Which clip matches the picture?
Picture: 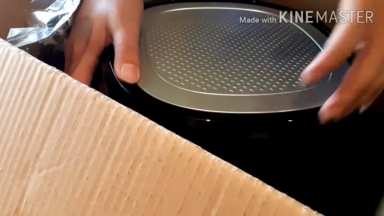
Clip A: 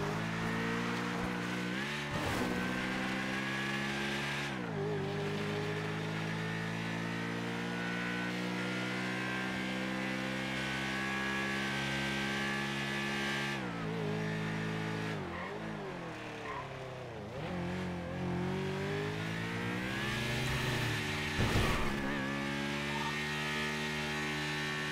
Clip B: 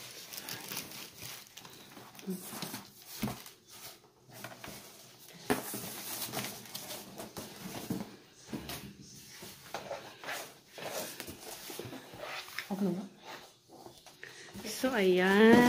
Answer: B